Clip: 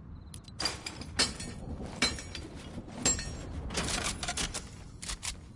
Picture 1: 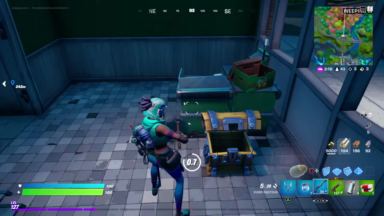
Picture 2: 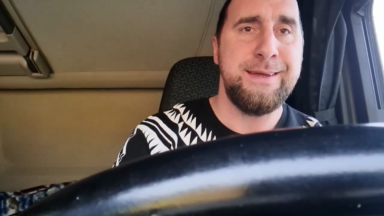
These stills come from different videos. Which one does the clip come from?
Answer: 1